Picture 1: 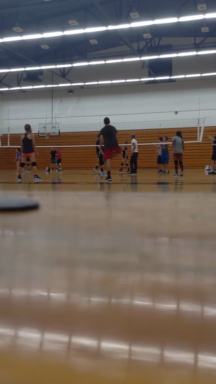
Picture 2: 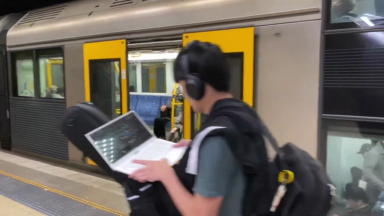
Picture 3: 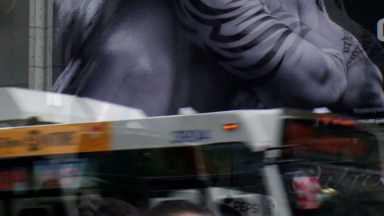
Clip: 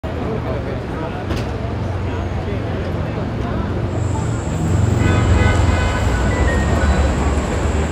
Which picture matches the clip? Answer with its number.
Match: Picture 3